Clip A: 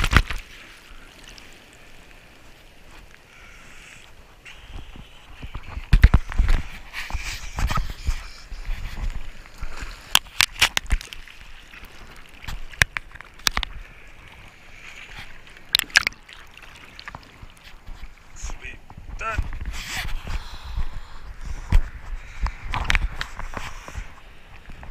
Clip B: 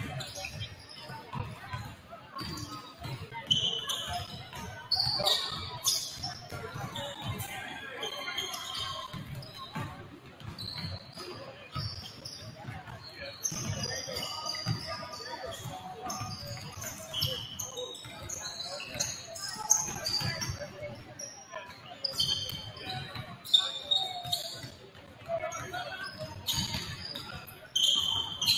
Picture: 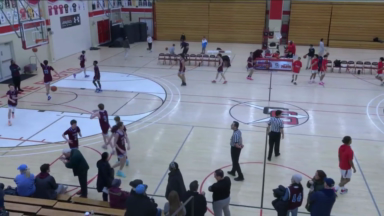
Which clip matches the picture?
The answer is B